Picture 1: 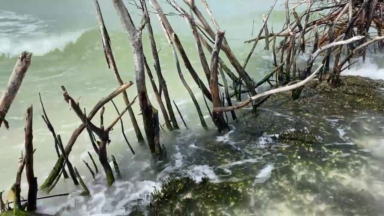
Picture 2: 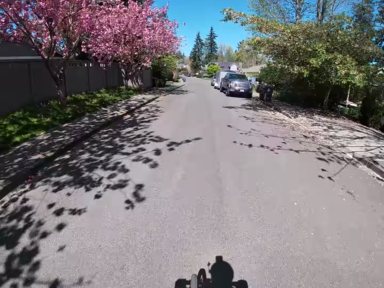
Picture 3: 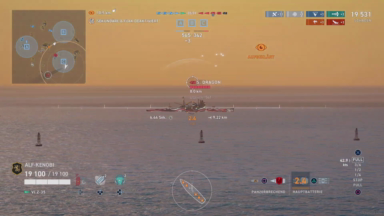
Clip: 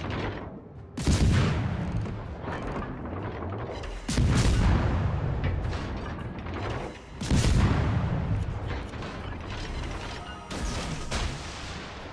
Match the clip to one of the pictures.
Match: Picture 3